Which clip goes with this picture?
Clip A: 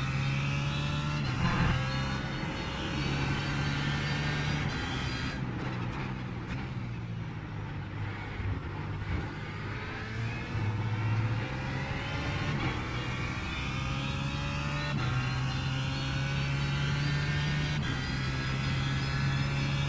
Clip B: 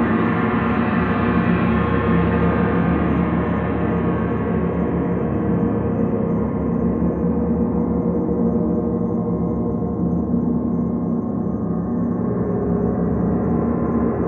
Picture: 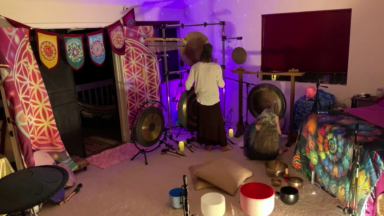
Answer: B